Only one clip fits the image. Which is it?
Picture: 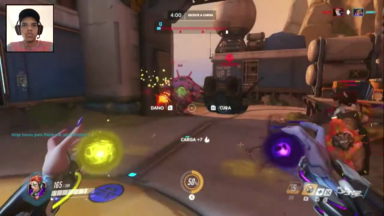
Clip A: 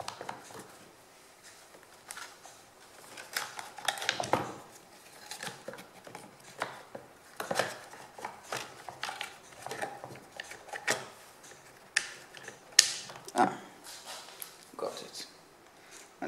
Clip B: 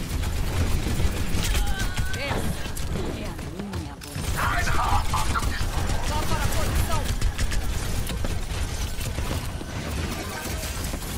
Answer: B